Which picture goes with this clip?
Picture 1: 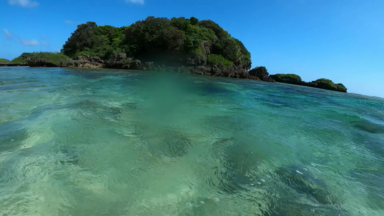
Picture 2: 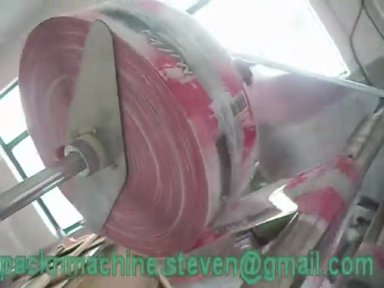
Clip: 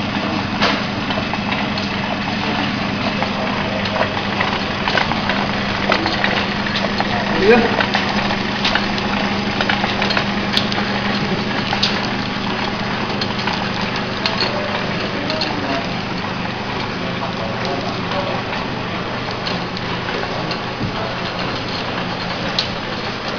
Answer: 2